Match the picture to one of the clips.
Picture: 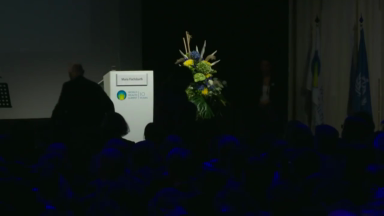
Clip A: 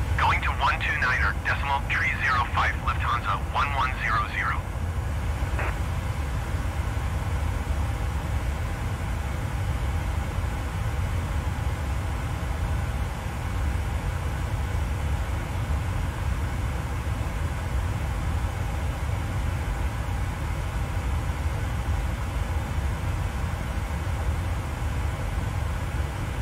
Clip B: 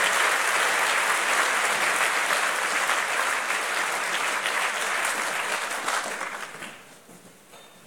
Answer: B